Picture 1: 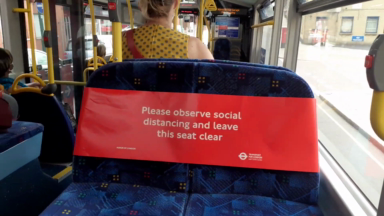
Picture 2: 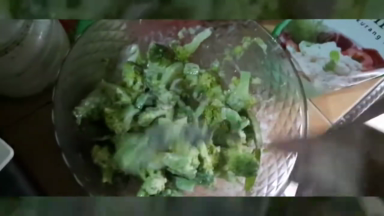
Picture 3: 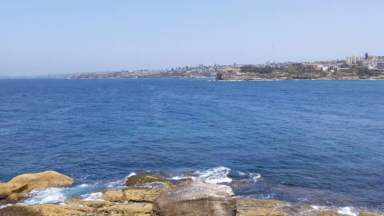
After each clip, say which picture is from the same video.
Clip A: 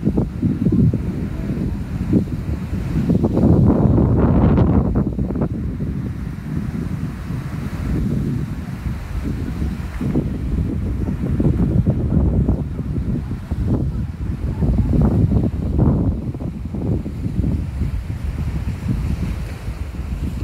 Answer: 3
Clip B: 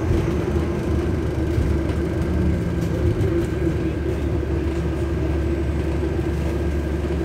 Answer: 1